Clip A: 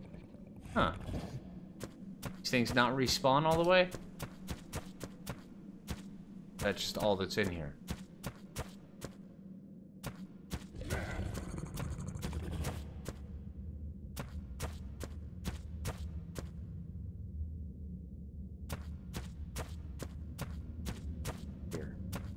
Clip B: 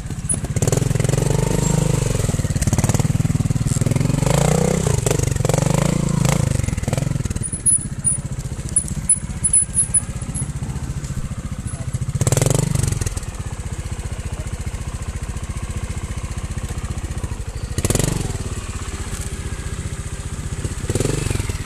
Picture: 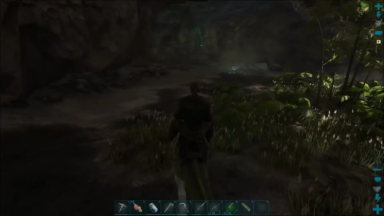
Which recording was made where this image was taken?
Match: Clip A